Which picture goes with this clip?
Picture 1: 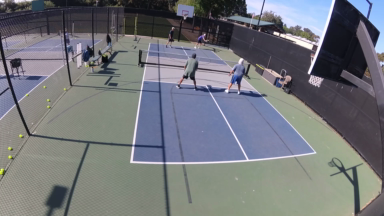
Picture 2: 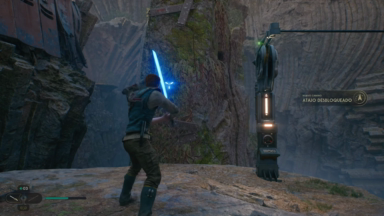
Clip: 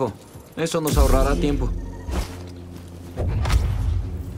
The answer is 2